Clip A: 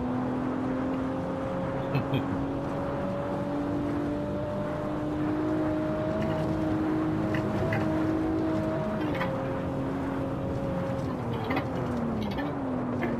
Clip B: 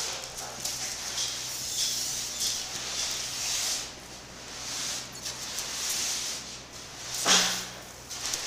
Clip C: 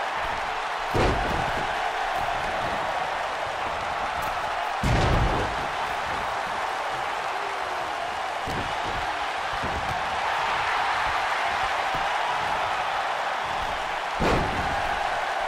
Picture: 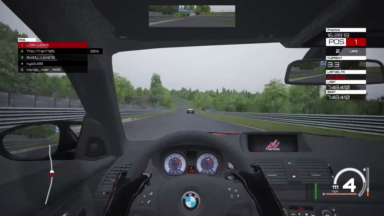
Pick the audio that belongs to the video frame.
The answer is A